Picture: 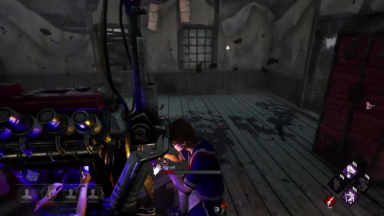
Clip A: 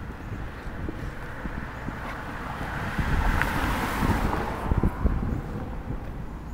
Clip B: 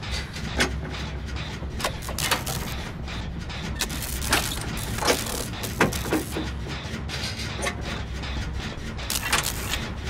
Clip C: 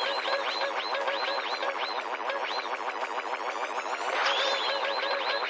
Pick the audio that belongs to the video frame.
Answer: B